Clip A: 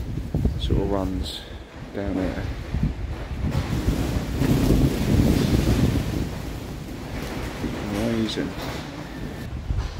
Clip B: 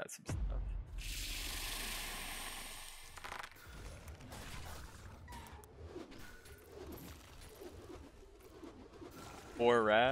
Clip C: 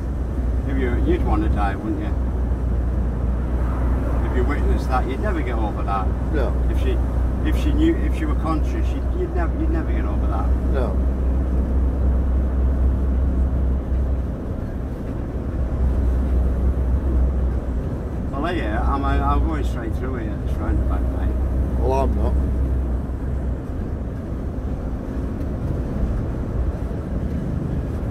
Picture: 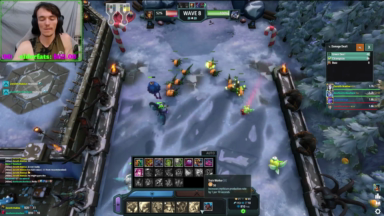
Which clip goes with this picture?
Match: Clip B